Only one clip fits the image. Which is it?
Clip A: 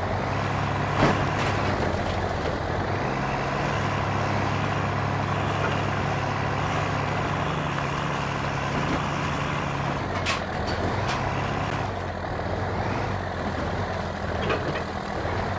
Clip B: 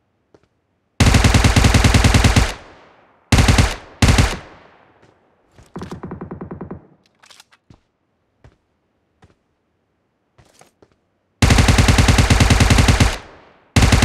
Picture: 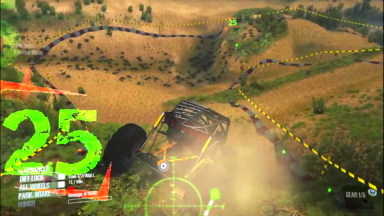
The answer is A